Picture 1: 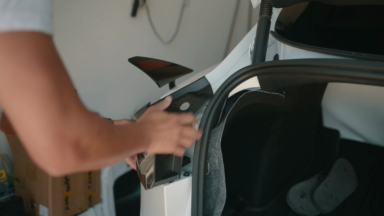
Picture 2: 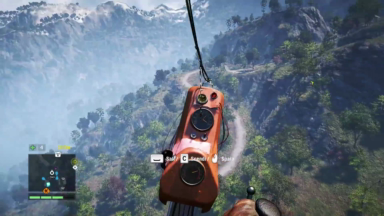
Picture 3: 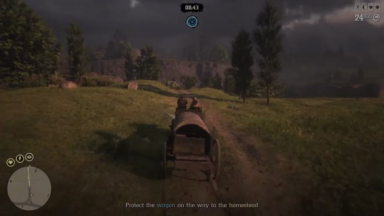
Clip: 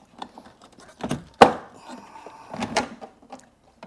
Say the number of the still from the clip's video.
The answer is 1